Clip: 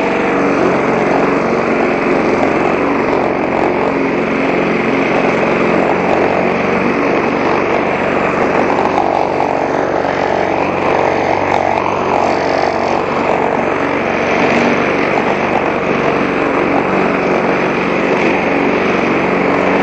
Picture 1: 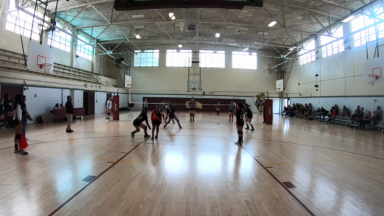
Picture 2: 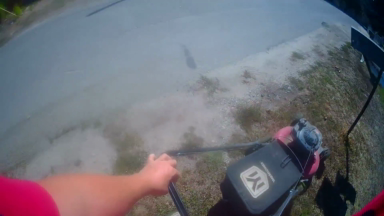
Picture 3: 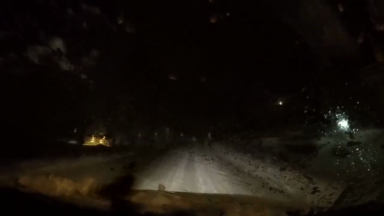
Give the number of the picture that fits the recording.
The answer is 2